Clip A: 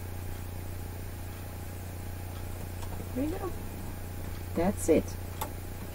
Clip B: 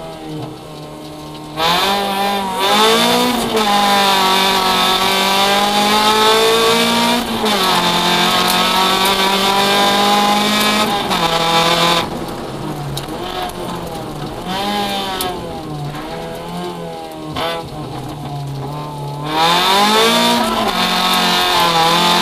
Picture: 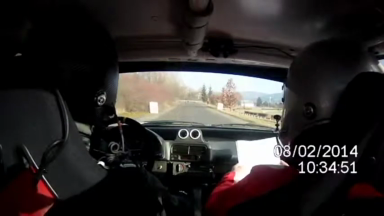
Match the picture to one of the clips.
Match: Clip B